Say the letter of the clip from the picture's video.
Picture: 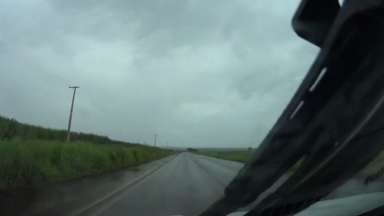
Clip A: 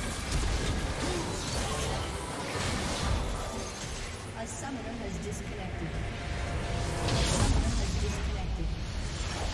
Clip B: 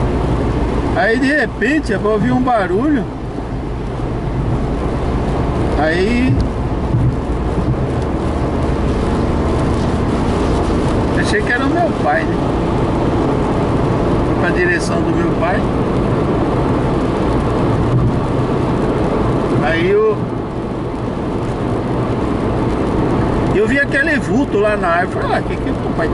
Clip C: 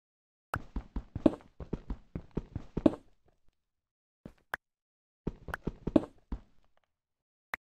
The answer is B